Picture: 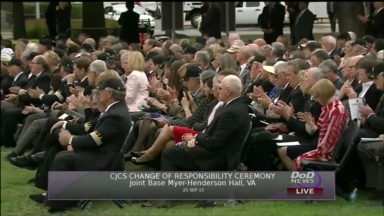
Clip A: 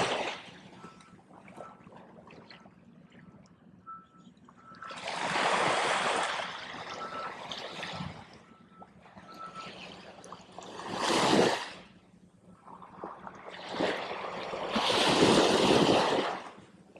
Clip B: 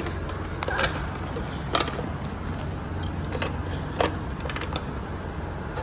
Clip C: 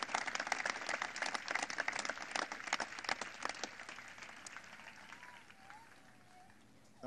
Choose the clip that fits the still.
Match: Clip C